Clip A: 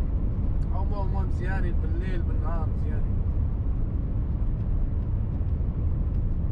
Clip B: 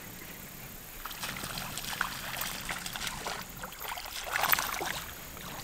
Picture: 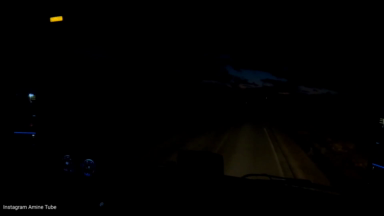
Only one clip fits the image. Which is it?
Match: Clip A